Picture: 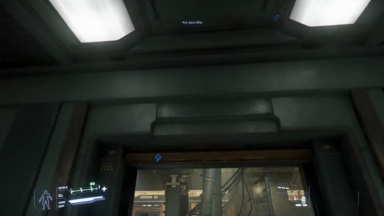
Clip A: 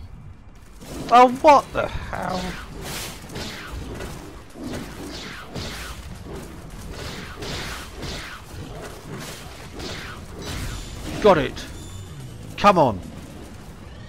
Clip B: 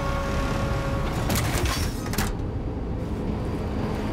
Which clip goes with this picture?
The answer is B